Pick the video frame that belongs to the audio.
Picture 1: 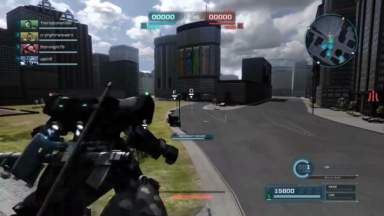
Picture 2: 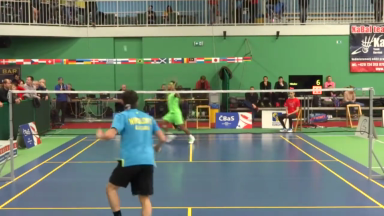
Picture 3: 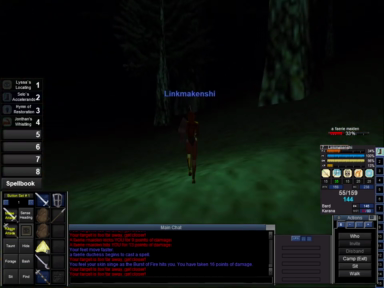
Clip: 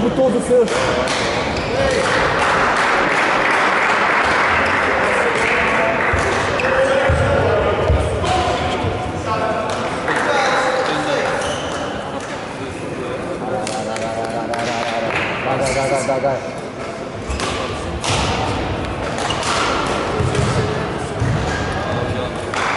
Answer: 2